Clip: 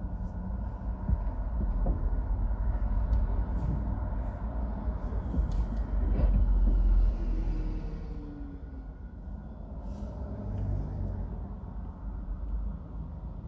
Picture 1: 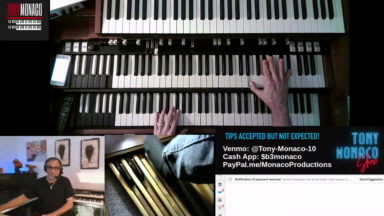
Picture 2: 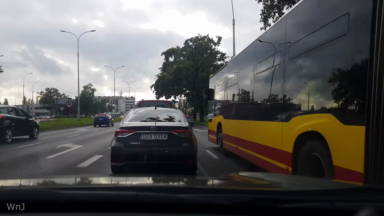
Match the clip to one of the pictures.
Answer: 2